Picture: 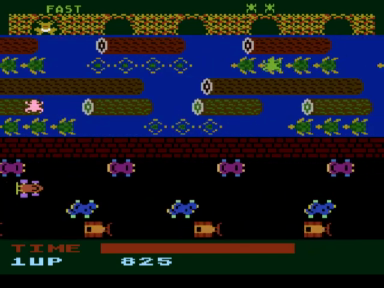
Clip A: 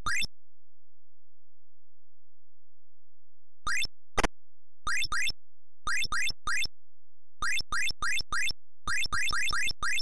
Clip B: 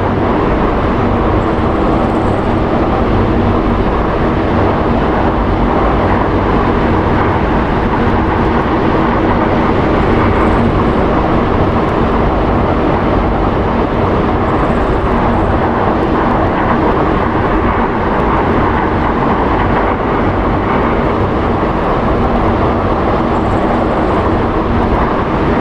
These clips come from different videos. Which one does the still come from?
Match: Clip A